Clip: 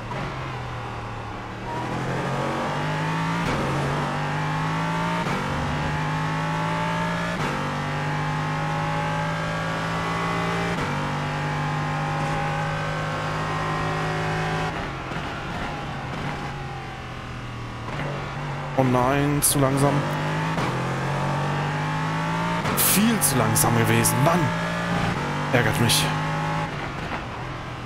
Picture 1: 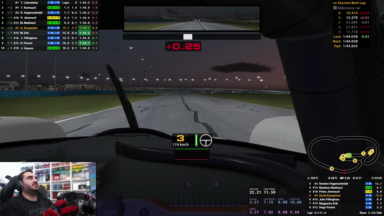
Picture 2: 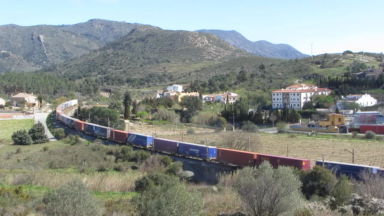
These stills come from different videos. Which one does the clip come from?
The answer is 1